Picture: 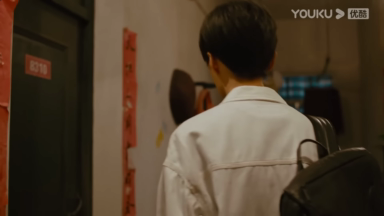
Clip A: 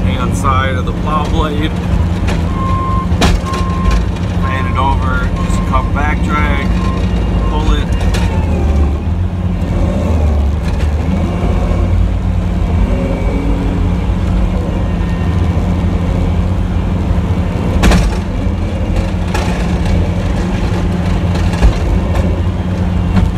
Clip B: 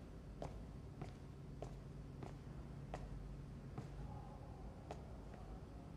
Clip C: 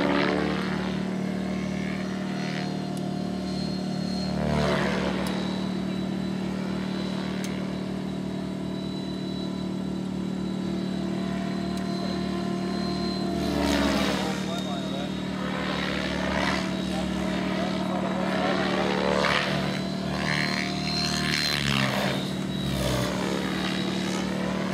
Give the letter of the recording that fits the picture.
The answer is B